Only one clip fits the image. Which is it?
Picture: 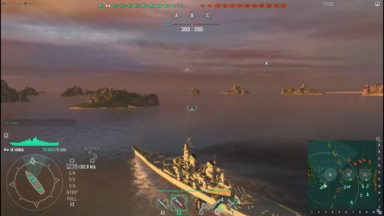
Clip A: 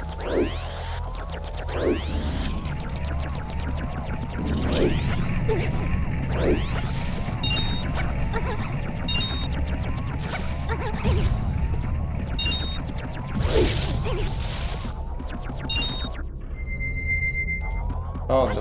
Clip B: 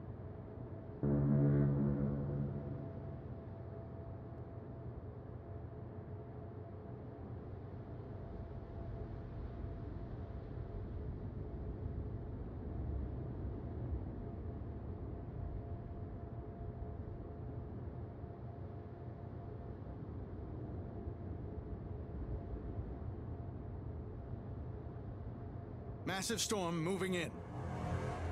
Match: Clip B